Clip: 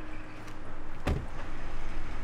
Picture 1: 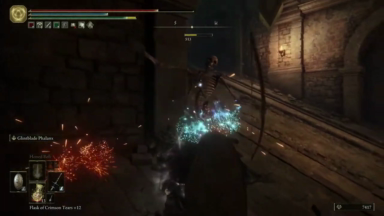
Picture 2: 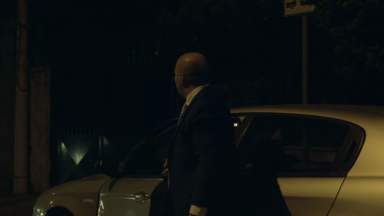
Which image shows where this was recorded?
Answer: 2